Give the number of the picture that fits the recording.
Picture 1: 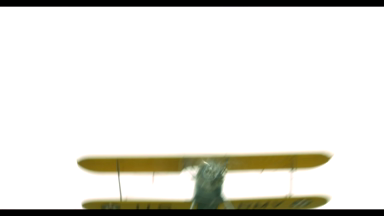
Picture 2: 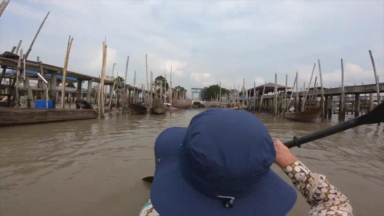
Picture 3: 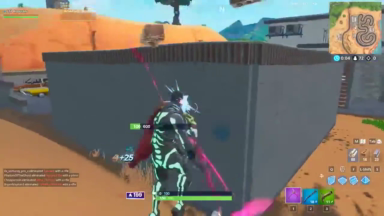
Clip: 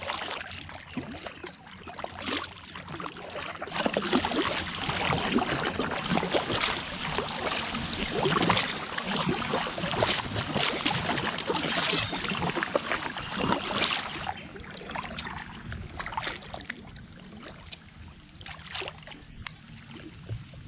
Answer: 2